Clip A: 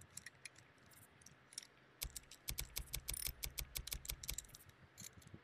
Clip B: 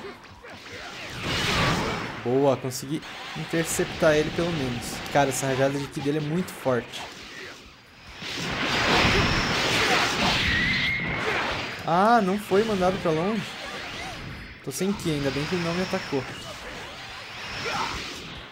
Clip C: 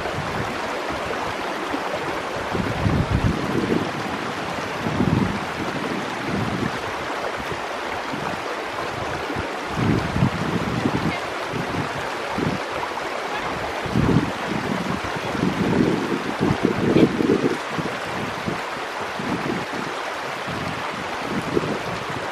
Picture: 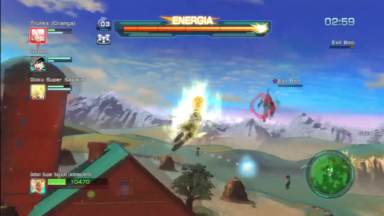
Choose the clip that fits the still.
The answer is B